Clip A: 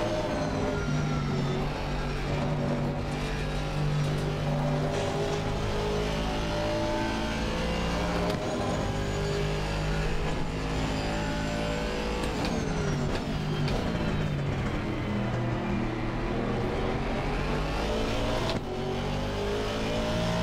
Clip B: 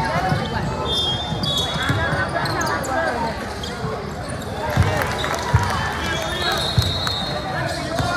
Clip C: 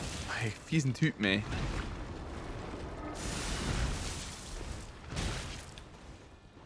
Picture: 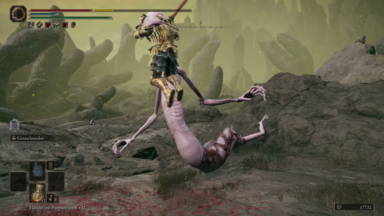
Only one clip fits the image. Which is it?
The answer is C